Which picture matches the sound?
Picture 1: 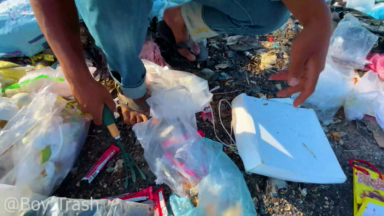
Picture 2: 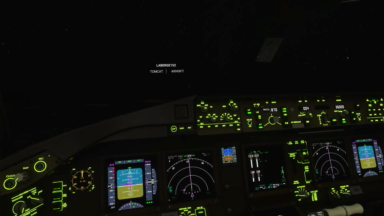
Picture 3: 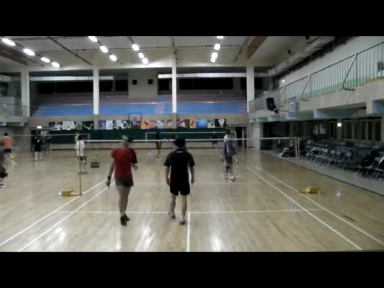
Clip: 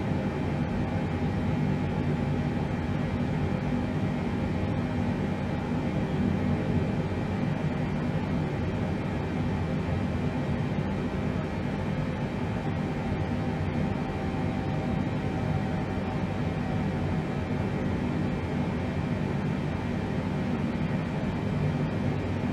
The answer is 2